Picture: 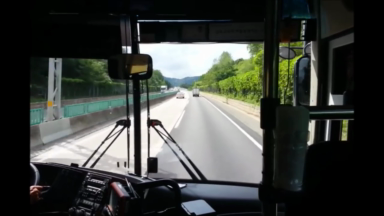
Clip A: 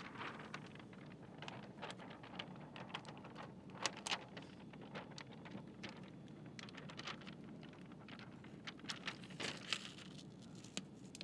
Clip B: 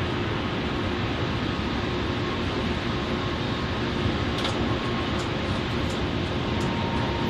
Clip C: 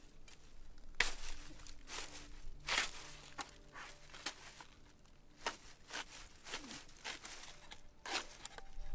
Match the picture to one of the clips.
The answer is B